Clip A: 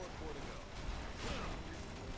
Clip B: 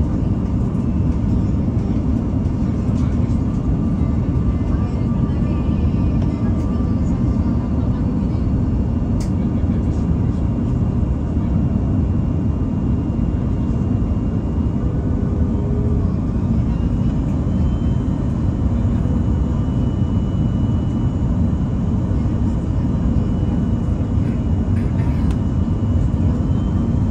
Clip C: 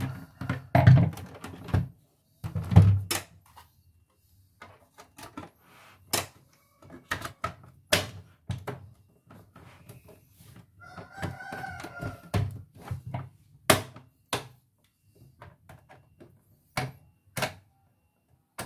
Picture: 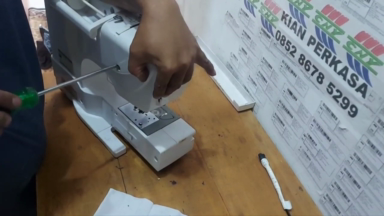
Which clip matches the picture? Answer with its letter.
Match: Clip C